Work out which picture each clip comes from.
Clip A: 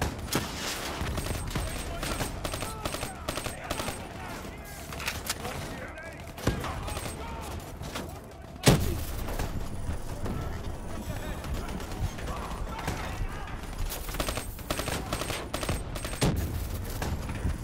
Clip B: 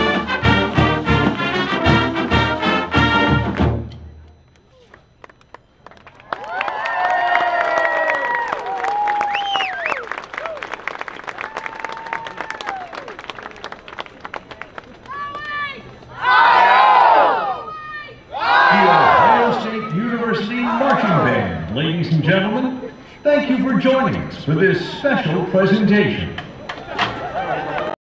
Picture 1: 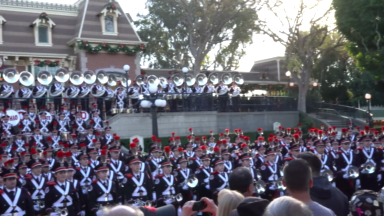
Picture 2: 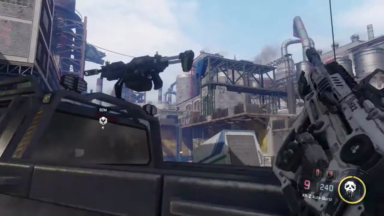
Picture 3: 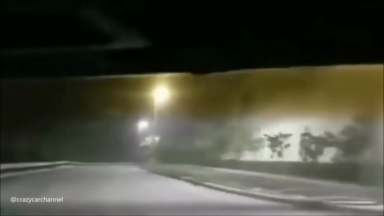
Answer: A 2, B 1